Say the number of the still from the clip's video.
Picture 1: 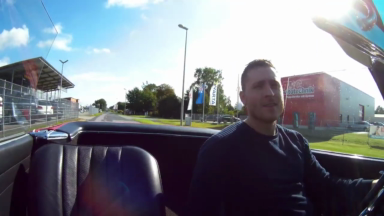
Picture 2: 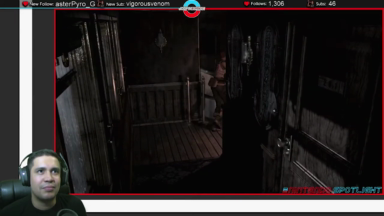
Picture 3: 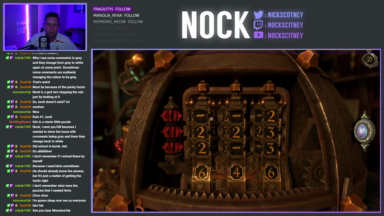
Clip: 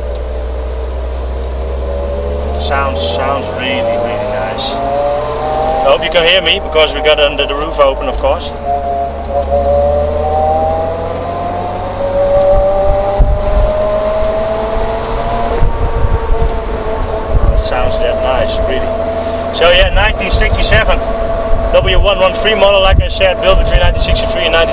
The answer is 1